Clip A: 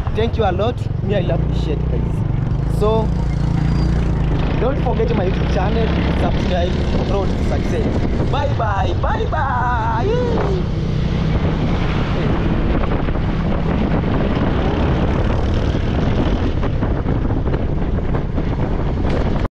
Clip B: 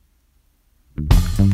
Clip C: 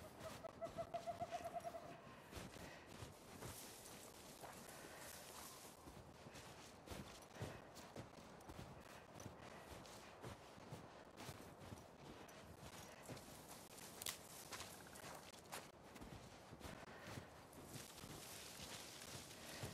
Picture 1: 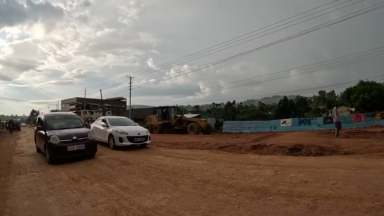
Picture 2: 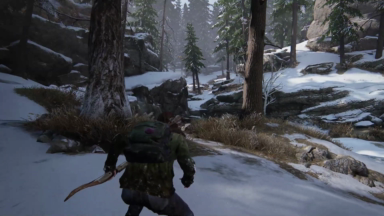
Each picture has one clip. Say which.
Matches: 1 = A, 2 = C